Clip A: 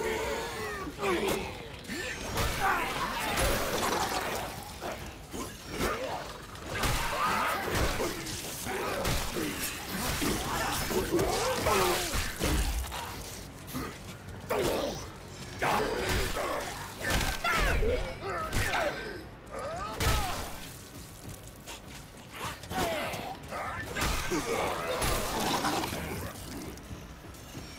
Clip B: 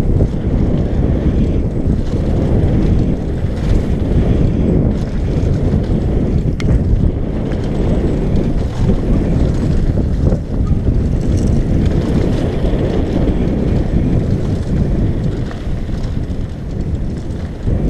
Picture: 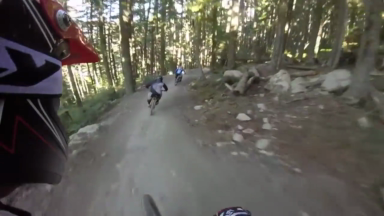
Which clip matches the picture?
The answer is B